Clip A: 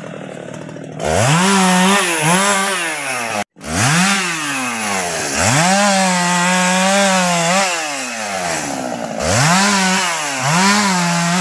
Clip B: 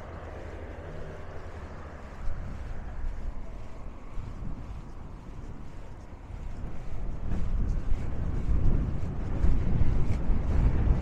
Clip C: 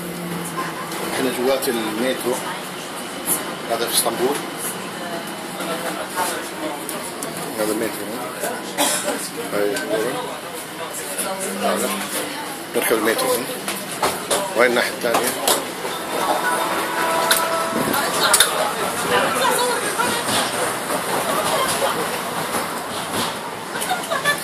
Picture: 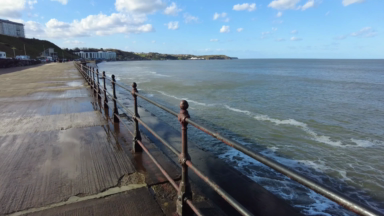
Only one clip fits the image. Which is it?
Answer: B